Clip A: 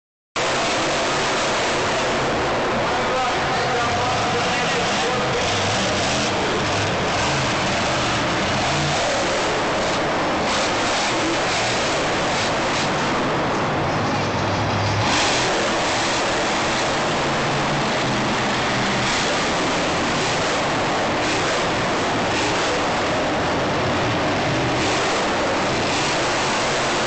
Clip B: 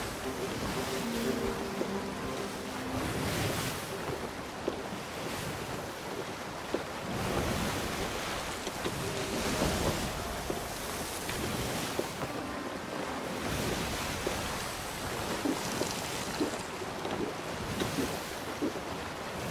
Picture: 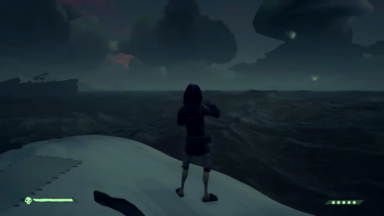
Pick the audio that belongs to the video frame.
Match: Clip B